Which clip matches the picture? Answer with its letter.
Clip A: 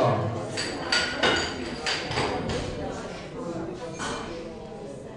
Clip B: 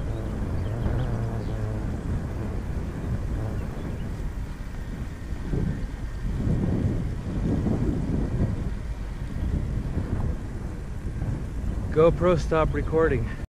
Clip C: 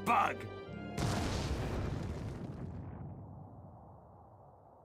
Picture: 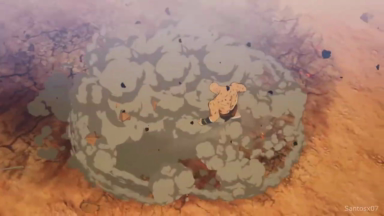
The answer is C